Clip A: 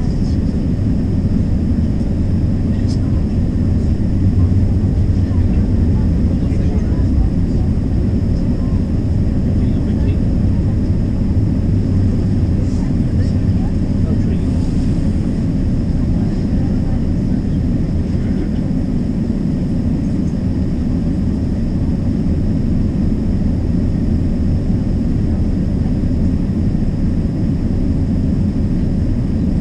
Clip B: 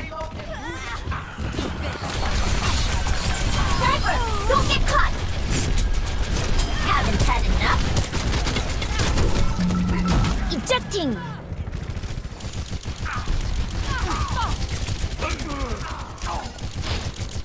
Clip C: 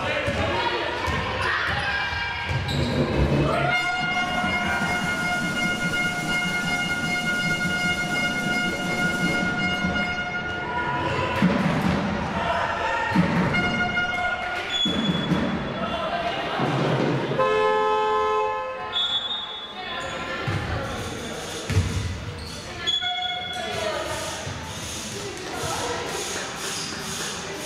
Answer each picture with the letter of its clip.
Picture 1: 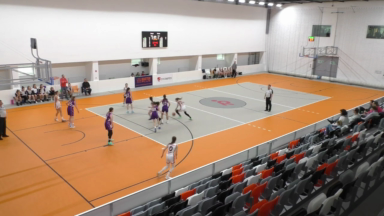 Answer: C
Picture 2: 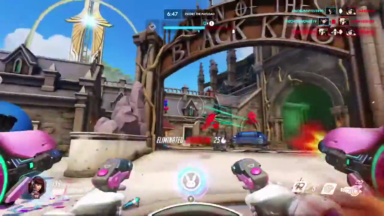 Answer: B